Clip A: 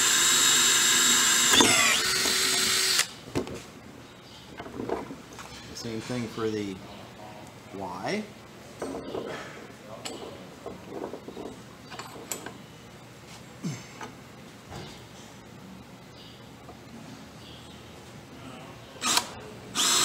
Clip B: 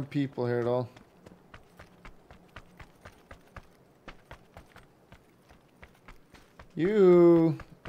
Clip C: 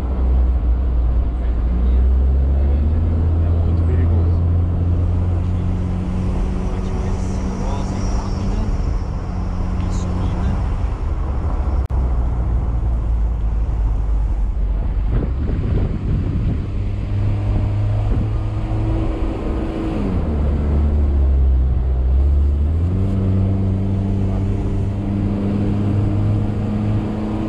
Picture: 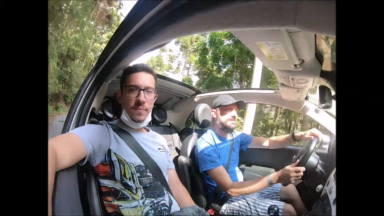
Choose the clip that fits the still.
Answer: C